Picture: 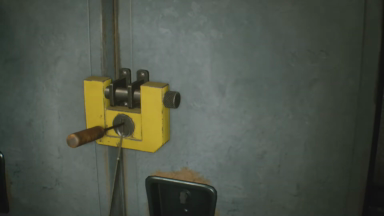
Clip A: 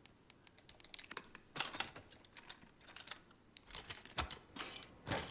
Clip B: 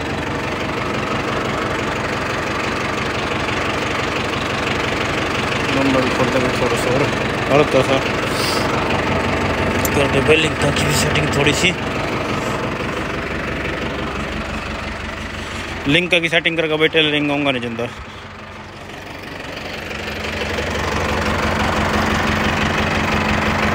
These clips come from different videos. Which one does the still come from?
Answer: A